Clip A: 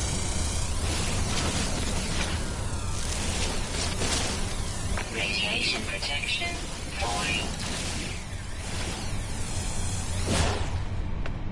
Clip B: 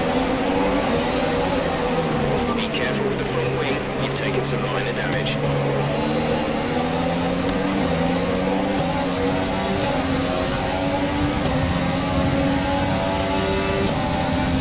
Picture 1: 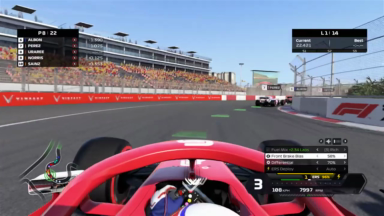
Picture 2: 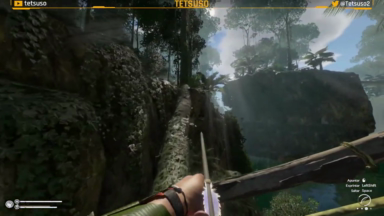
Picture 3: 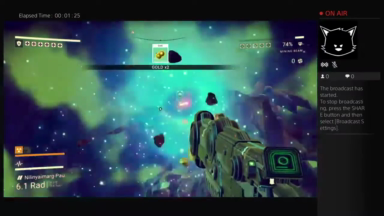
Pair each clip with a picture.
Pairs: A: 3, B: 1